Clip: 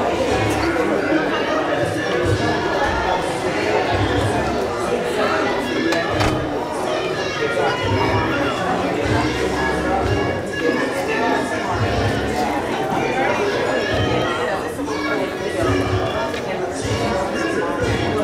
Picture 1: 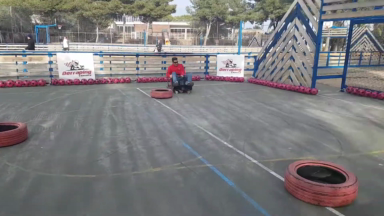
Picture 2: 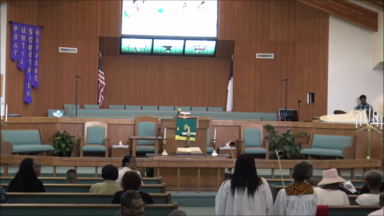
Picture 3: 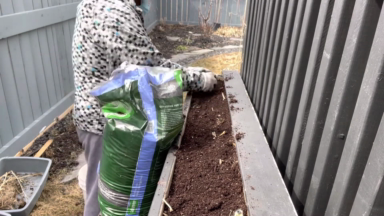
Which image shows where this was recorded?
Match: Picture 2